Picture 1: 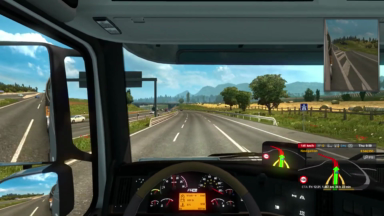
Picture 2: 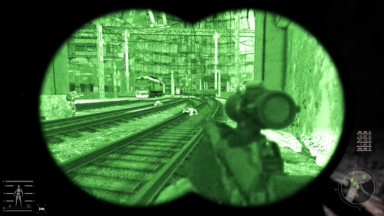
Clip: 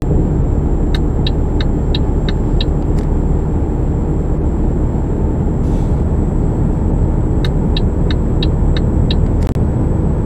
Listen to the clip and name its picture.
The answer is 1